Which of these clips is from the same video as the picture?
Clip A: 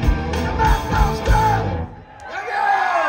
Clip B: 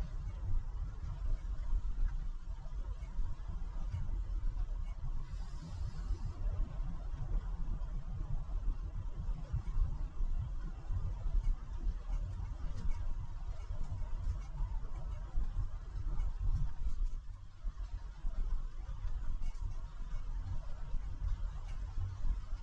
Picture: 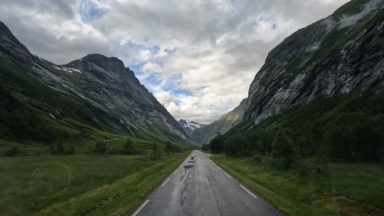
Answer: B